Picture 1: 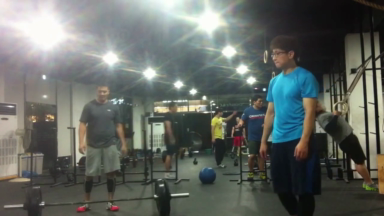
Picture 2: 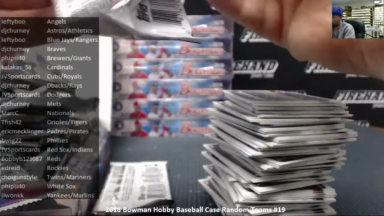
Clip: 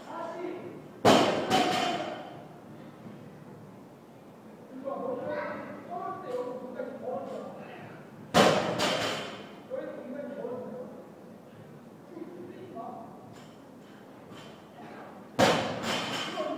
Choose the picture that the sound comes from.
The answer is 1